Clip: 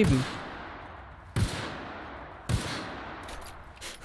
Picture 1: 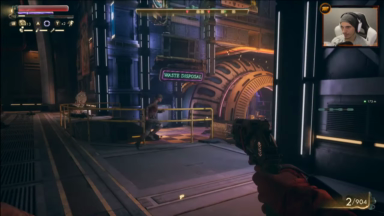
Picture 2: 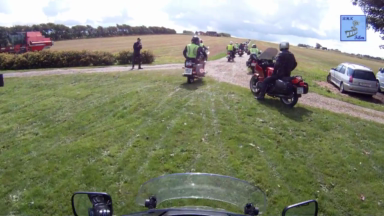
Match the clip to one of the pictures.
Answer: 1